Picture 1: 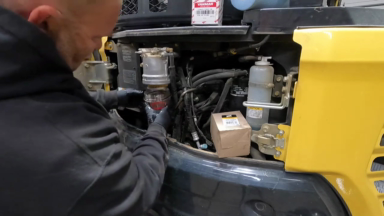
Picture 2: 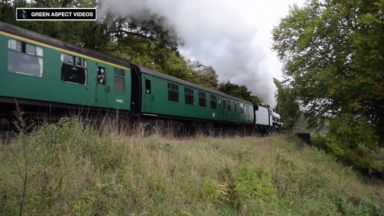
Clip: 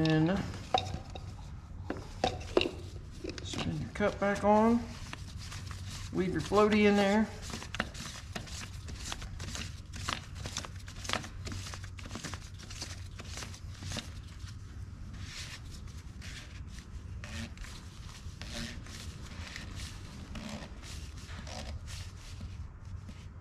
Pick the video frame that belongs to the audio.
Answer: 1